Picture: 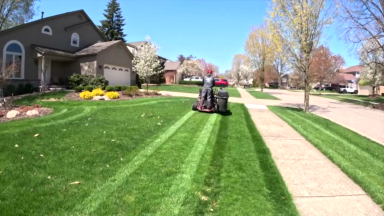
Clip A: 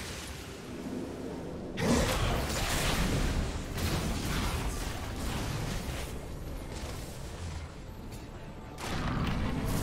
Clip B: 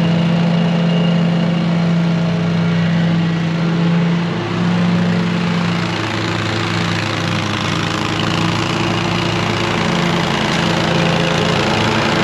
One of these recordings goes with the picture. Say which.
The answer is B